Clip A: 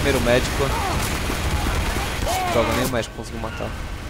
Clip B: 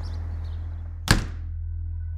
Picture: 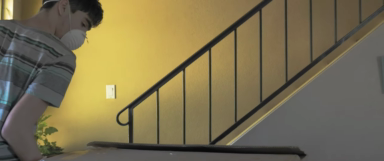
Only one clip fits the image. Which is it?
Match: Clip B